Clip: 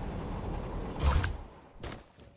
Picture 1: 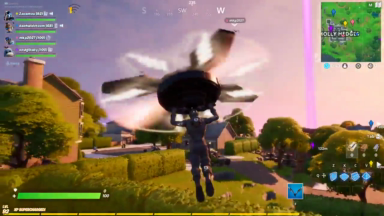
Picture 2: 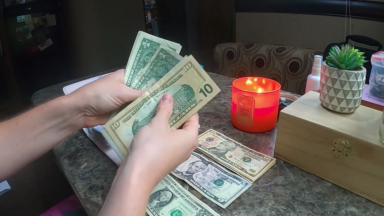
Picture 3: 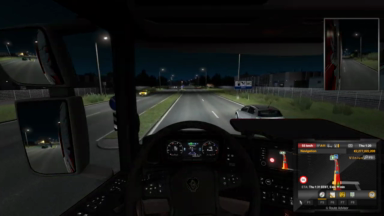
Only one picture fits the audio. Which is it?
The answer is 1